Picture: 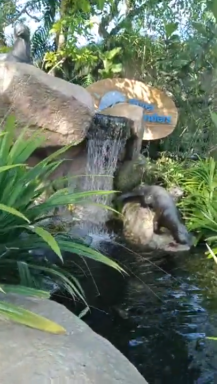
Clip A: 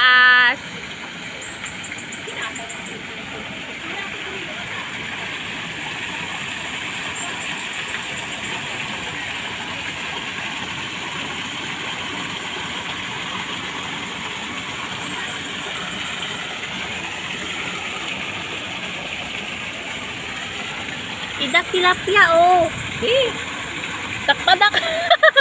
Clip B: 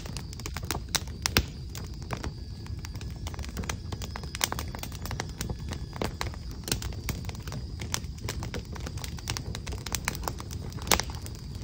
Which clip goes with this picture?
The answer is A